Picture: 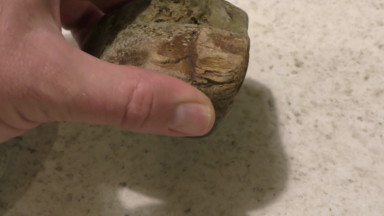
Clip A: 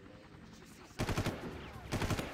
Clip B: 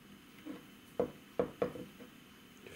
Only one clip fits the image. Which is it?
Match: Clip B